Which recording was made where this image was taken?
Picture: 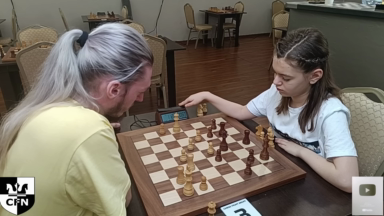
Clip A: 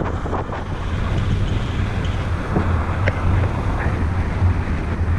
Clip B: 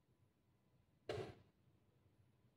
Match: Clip B